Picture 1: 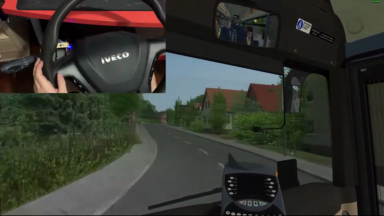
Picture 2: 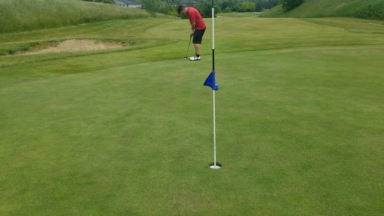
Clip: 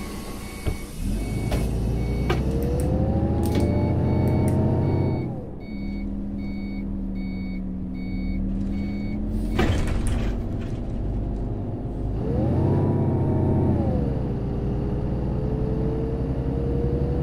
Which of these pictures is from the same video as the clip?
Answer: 1